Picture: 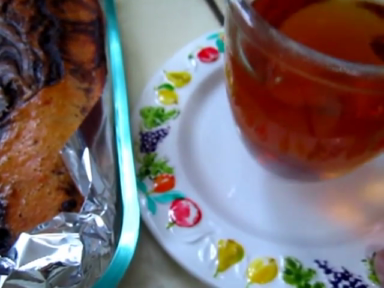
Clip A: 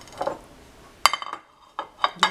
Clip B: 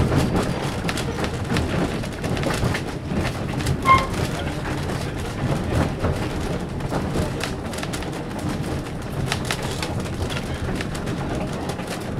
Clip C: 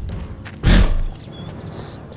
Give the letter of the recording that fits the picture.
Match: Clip A